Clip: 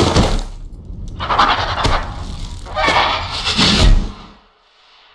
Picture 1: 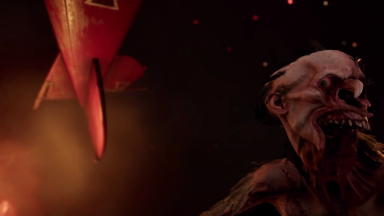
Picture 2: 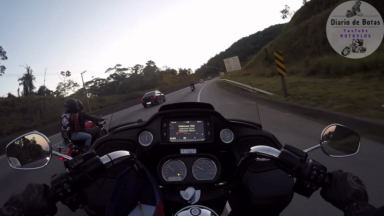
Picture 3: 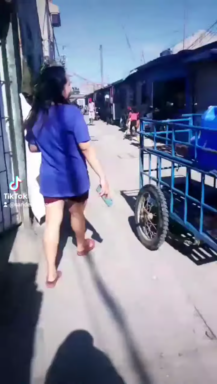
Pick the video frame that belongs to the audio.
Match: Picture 1